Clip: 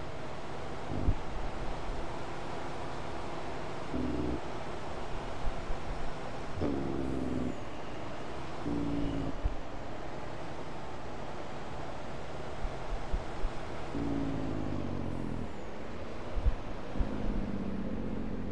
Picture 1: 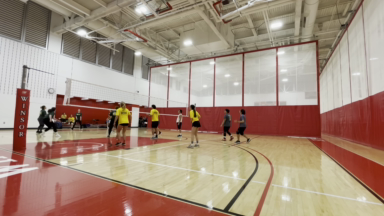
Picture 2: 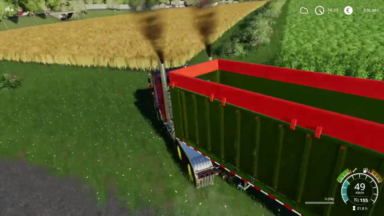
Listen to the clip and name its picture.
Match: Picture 2